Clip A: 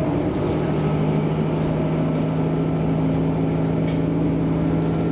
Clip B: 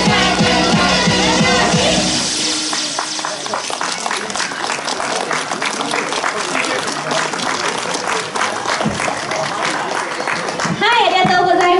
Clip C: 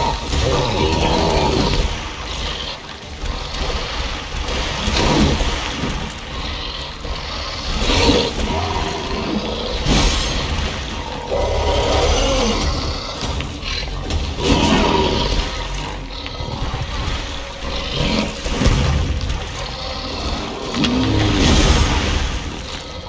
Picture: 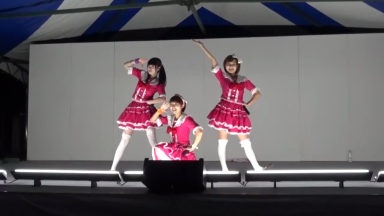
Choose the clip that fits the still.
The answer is B